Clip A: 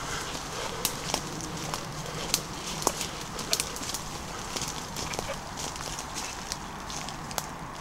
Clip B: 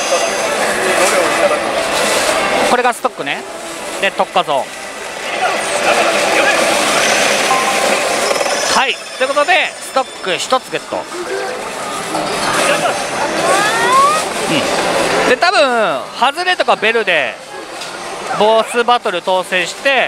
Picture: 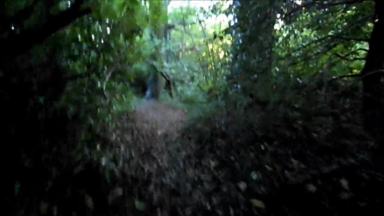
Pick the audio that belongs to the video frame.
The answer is A